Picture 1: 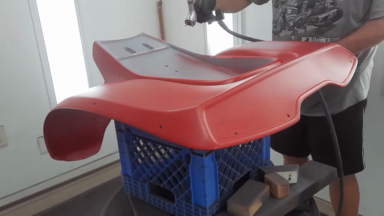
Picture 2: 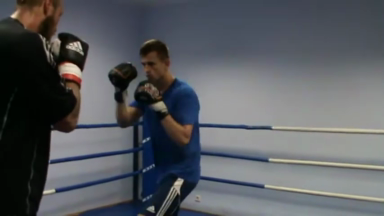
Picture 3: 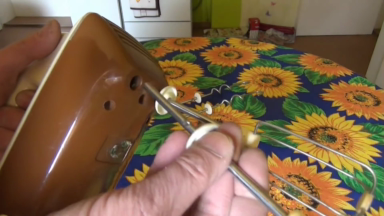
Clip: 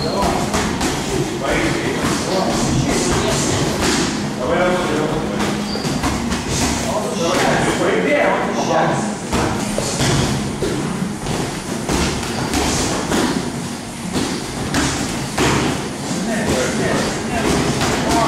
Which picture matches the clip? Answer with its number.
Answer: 2